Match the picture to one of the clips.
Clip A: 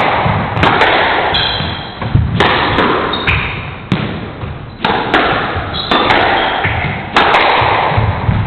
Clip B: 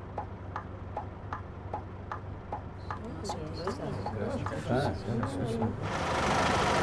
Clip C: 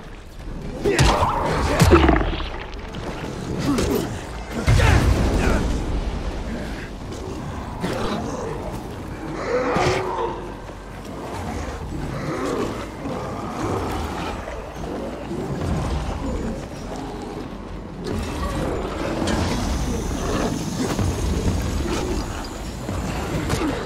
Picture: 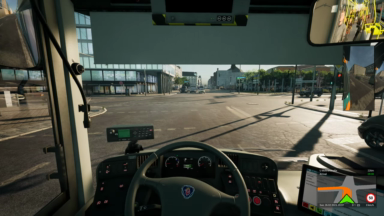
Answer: B